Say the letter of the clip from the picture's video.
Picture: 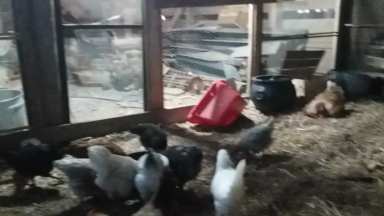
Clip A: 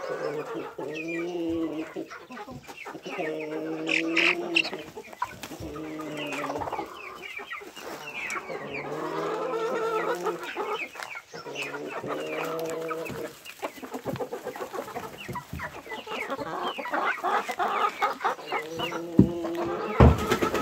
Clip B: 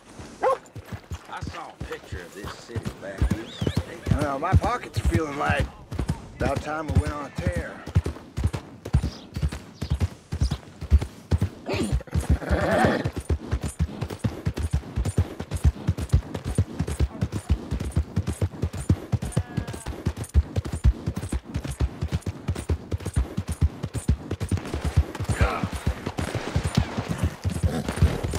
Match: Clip A